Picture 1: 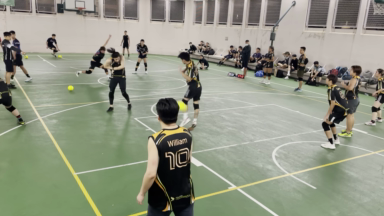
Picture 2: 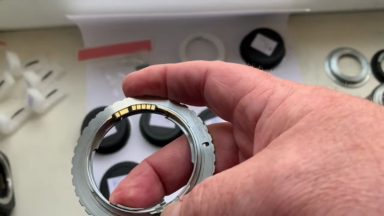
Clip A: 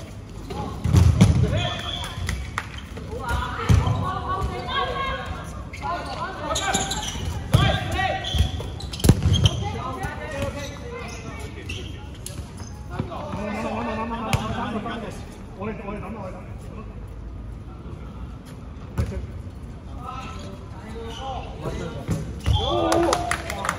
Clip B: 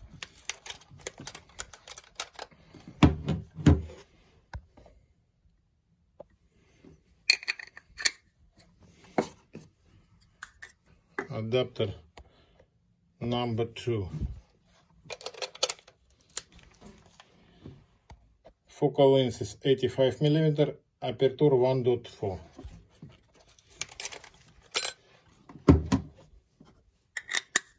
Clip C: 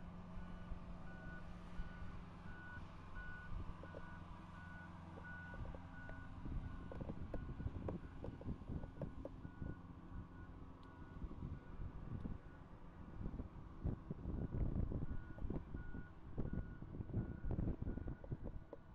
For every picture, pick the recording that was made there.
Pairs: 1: A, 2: B